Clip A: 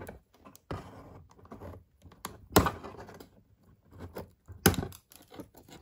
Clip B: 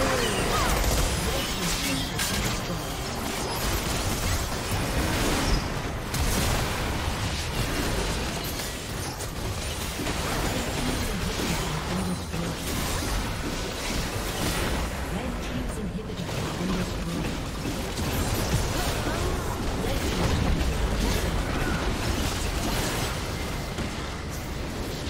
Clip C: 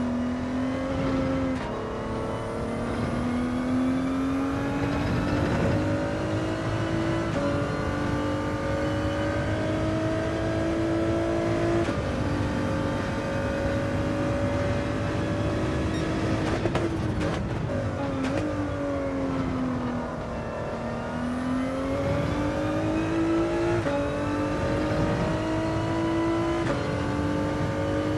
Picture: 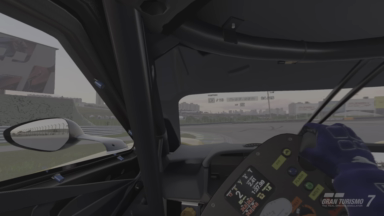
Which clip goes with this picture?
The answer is C